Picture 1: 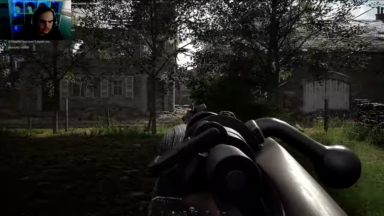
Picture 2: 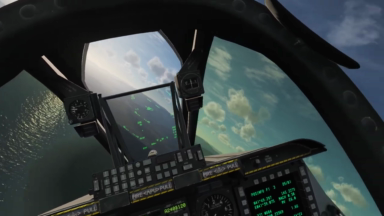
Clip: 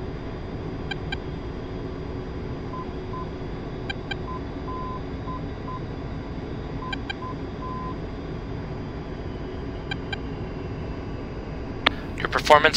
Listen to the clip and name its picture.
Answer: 2